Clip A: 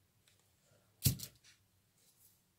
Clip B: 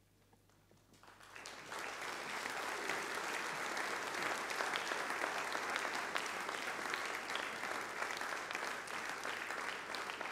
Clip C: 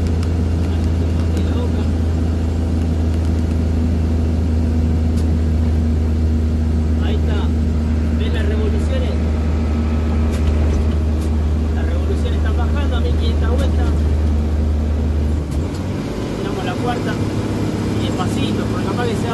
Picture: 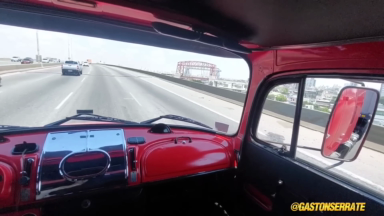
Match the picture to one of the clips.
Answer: C